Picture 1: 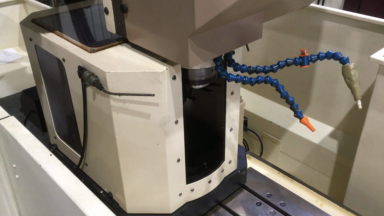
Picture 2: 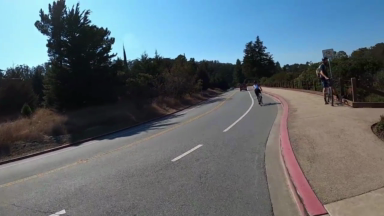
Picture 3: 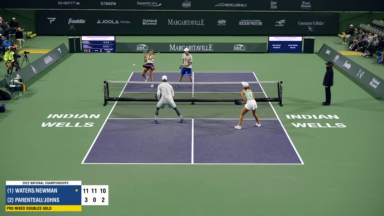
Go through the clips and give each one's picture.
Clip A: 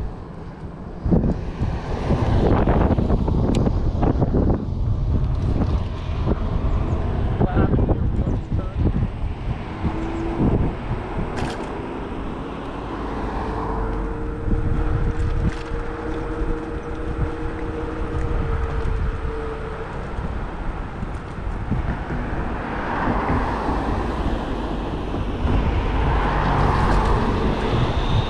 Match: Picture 2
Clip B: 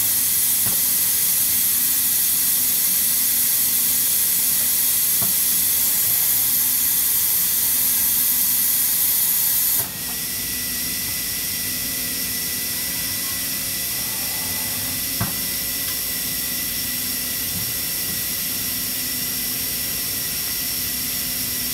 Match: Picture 1